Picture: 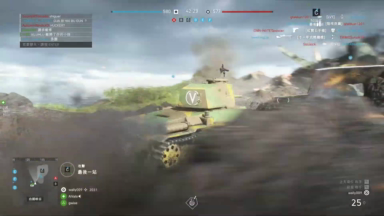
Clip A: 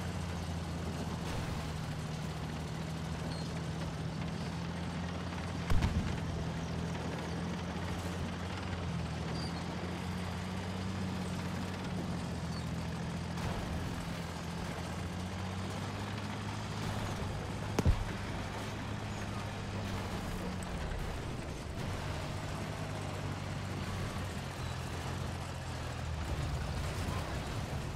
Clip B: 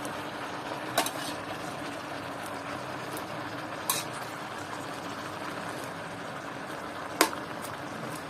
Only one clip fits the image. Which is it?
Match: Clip A